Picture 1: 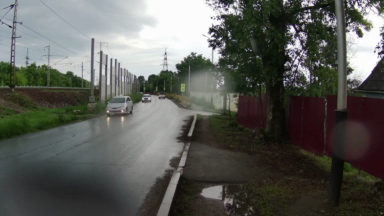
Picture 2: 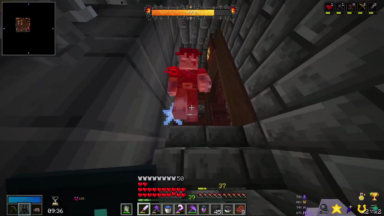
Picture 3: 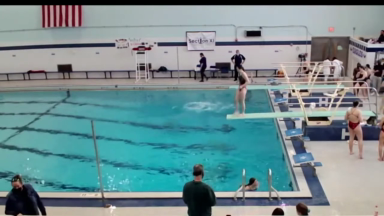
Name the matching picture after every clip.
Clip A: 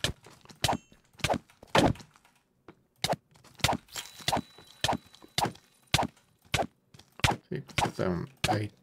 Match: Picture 2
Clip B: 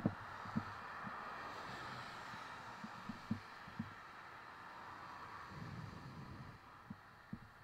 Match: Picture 1